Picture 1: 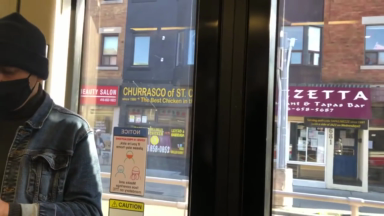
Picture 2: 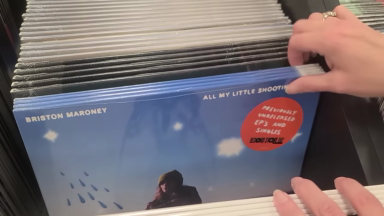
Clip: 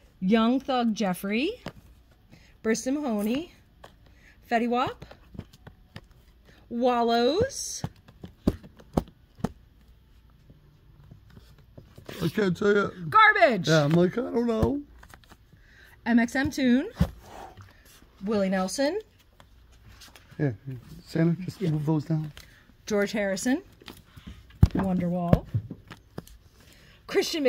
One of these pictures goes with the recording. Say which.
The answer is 2